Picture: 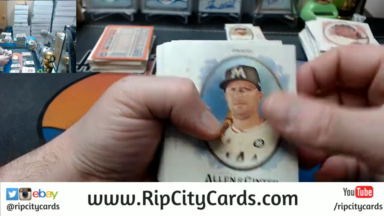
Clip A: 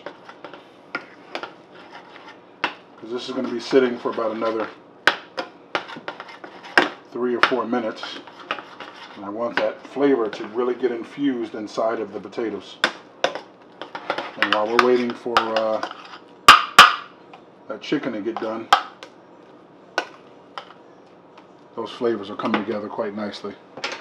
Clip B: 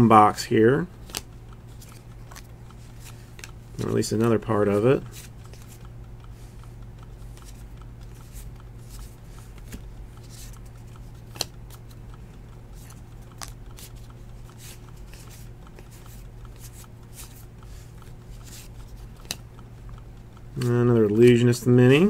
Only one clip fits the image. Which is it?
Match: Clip B